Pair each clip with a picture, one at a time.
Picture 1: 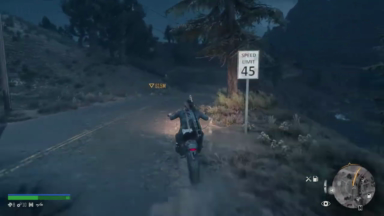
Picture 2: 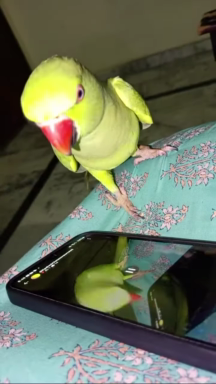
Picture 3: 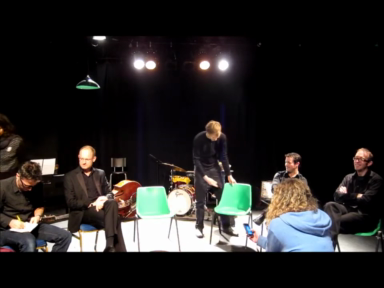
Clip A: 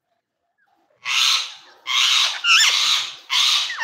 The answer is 2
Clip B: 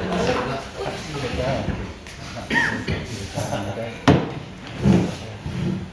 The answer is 3